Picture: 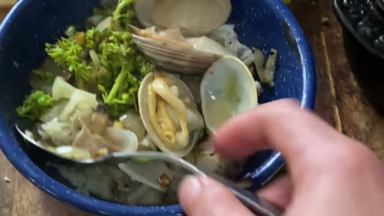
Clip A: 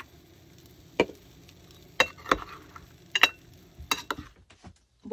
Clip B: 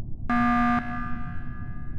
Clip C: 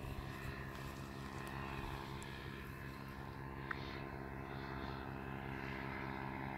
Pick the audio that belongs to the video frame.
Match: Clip A